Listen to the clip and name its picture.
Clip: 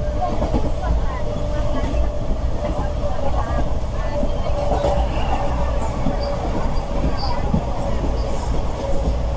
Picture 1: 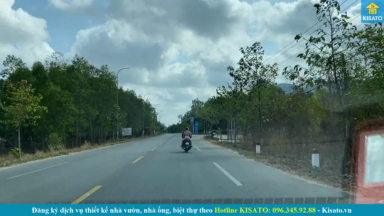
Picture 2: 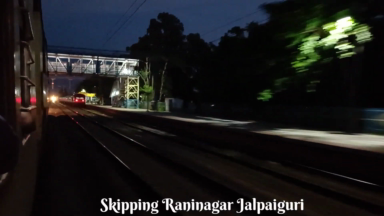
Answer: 2